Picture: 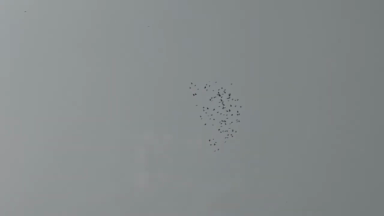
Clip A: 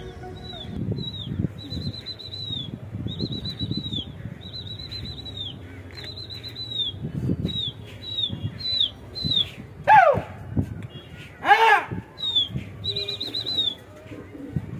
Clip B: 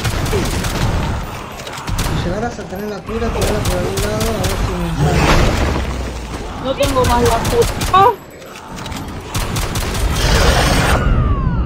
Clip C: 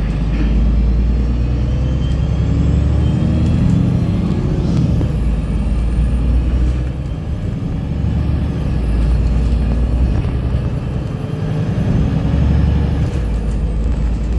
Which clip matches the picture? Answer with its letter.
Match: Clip A